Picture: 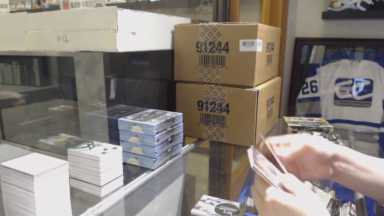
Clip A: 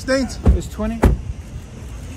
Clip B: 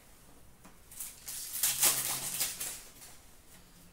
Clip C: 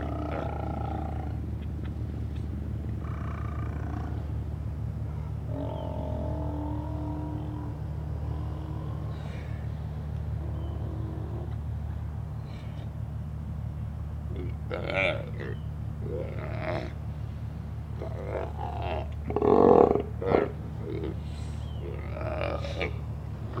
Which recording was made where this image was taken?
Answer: B